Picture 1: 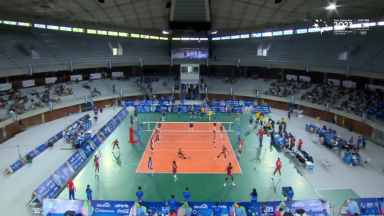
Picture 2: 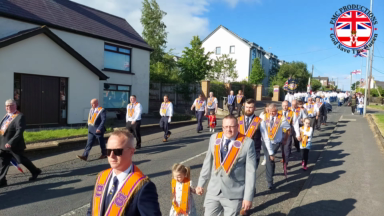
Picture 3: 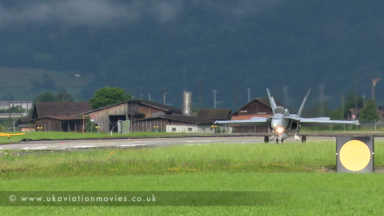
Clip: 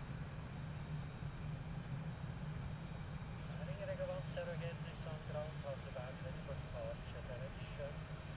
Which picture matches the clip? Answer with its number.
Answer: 3